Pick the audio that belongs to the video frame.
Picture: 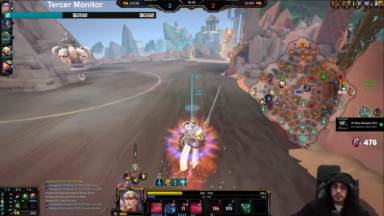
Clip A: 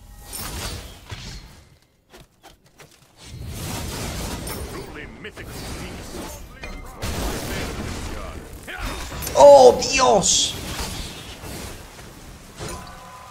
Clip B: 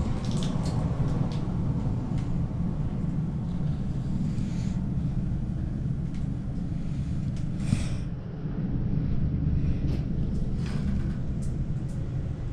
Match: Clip A